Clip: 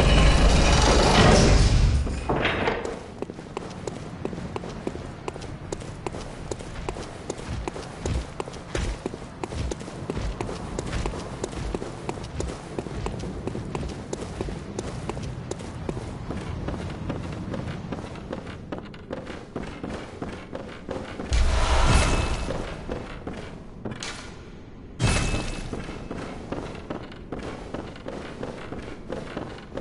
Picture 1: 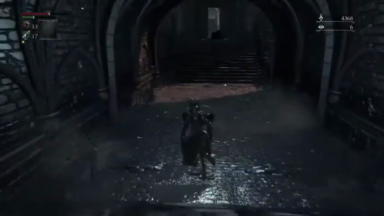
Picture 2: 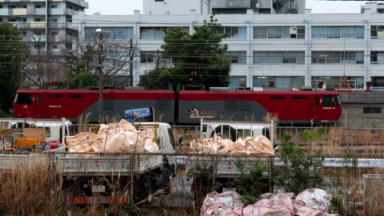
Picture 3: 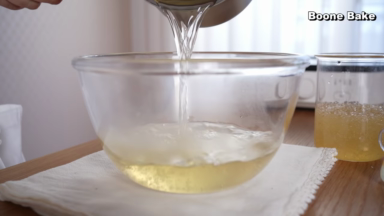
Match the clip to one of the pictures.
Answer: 1